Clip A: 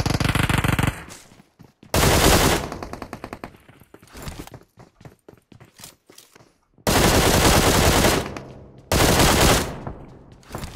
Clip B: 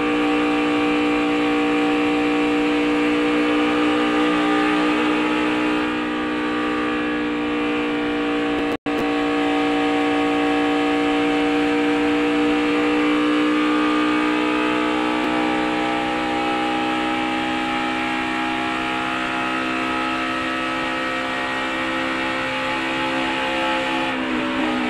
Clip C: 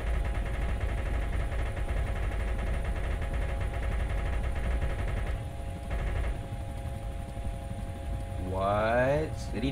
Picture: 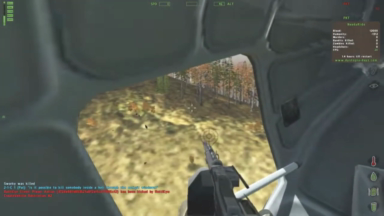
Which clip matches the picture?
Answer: C